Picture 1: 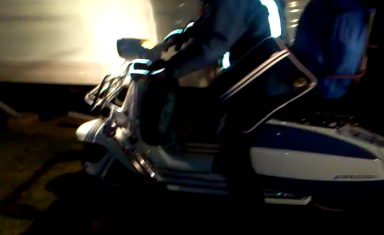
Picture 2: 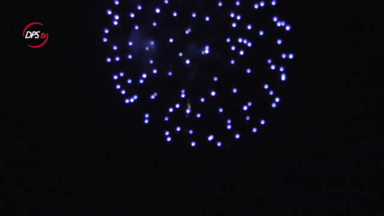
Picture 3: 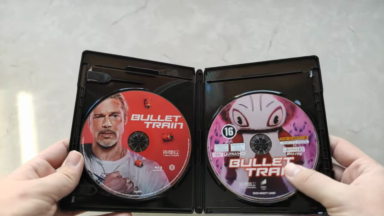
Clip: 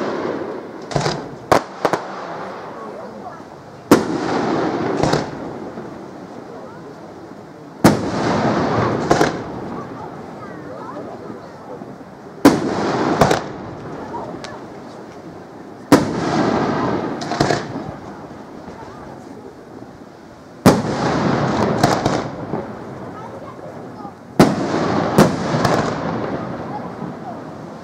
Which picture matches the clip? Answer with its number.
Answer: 2